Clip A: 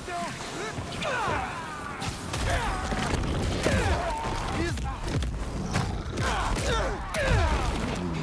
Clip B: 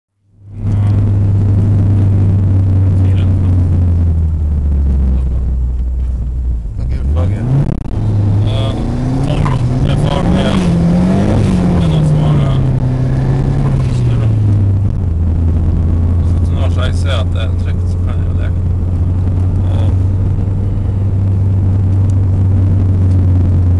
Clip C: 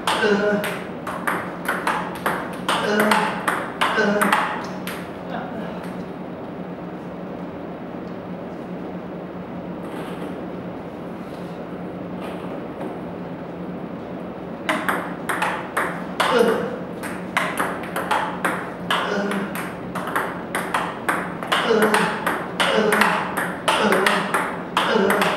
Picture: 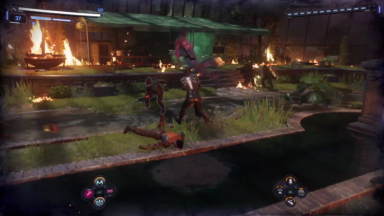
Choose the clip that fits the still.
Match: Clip A